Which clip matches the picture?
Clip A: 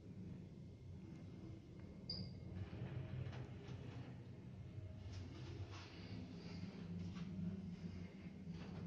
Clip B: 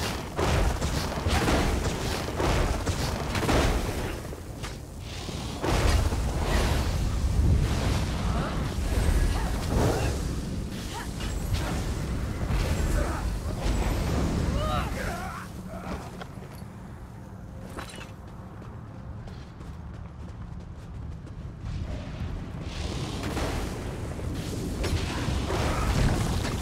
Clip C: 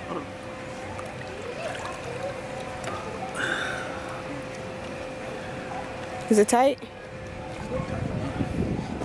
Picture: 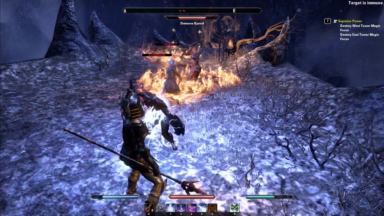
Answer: B